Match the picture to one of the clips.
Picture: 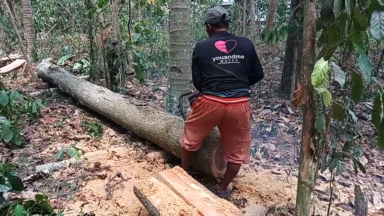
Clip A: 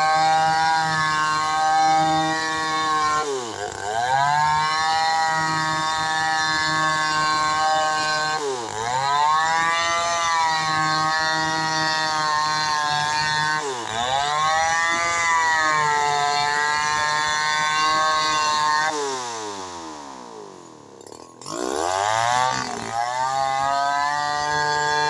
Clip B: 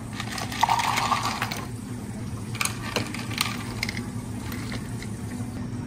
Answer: A